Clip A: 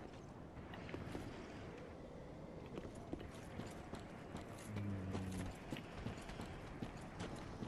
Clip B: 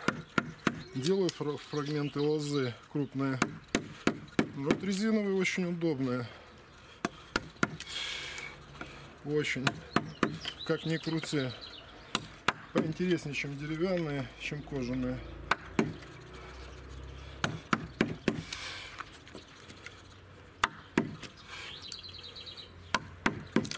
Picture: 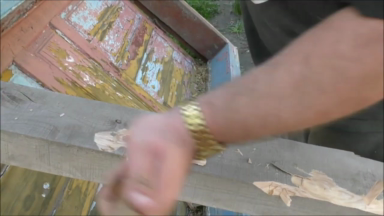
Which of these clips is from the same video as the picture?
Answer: B